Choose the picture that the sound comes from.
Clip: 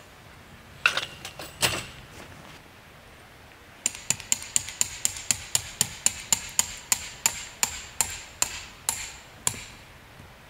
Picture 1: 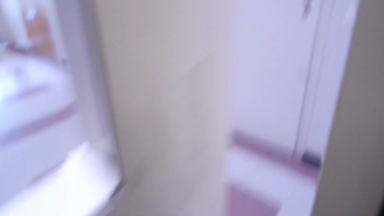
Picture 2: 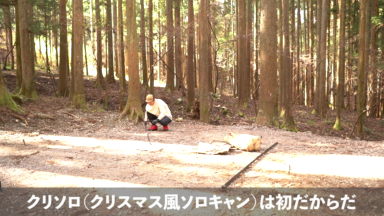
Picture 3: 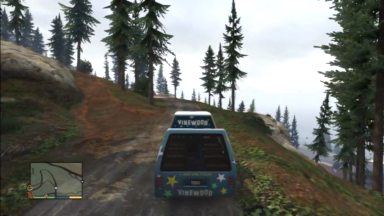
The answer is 2